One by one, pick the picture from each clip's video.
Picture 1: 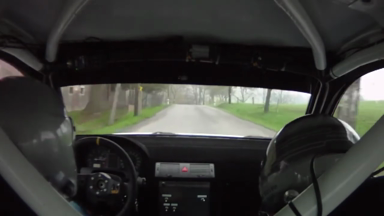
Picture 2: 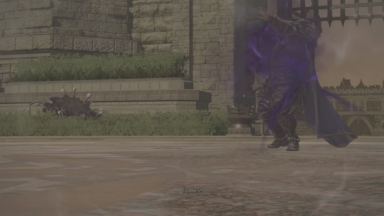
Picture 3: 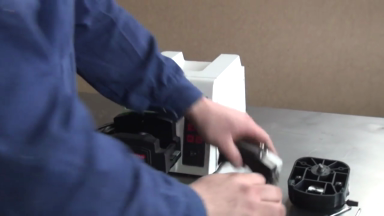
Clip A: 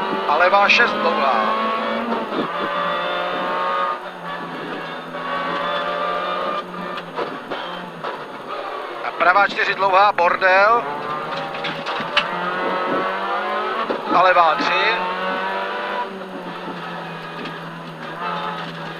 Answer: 1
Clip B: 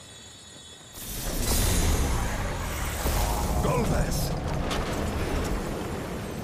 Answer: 2